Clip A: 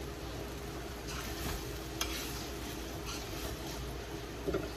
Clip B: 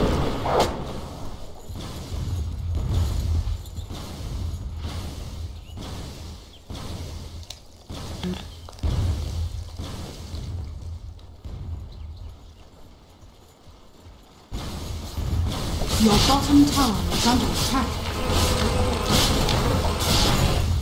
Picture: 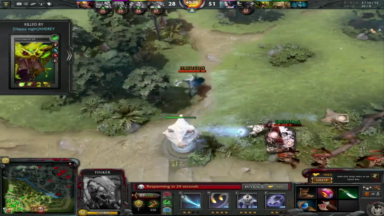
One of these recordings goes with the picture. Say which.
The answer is B